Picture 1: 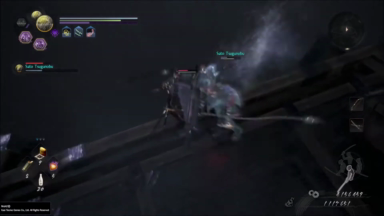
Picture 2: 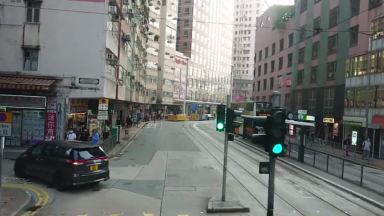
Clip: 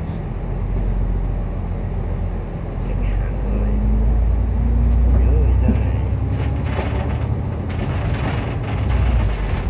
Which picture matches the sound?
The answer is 2